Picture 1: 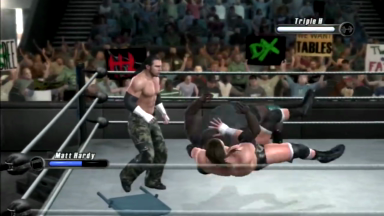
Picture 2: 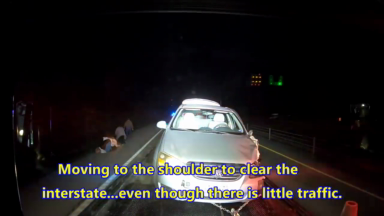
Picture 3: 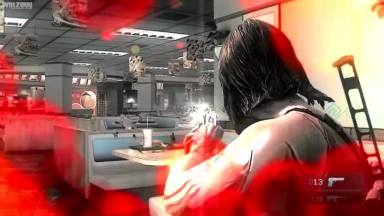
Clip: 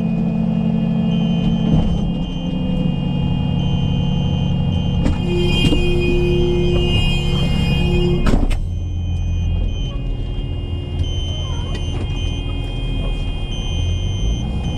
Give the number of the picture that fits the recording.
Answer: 2